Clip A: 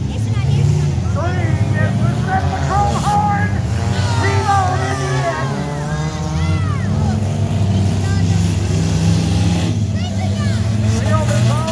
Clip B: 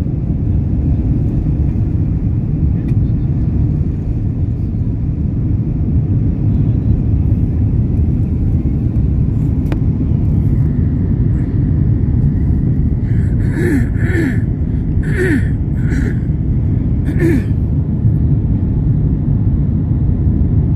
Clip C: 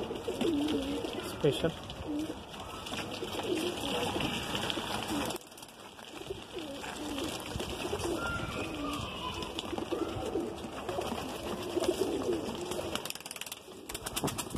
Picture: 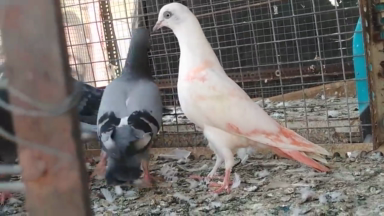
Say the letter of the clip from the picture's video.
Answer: C